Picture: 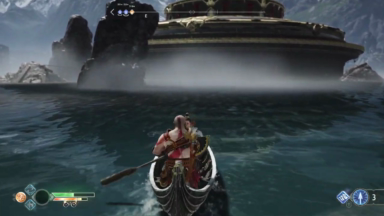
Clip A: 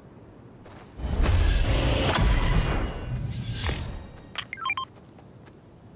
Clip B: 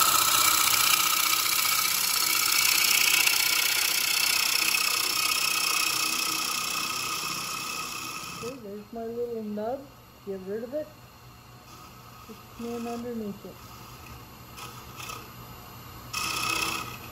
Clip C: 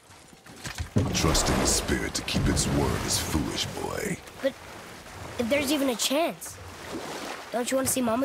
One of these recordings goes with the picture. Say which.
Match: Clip C